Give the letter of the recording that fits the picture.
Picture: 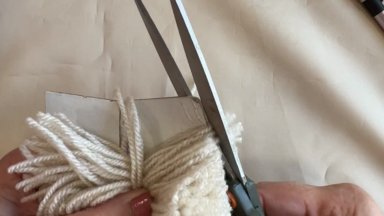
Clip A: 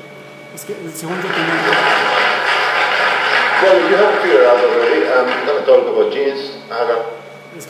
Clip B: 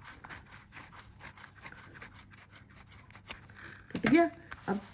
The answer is B